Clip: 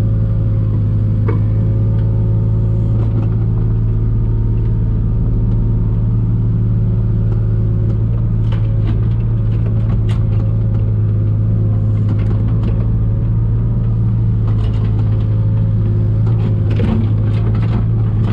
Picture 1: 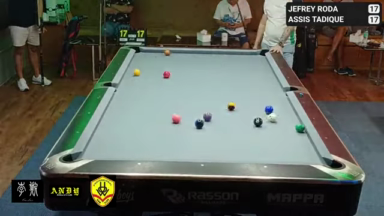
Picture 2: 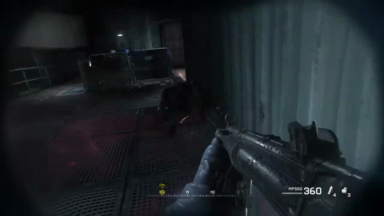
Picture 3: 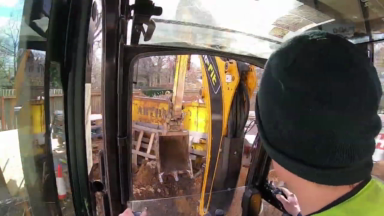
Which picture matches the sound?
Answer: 3